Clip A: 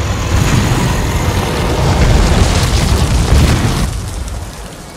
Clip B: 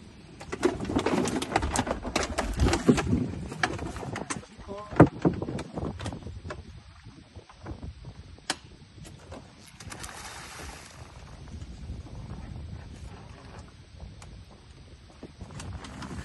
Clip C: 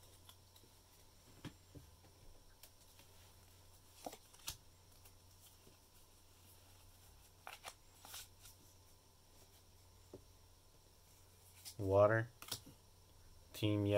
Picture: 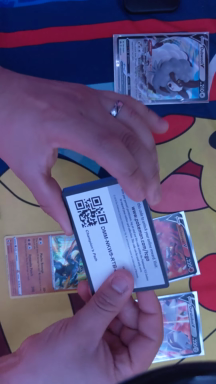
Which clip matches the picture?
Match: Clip C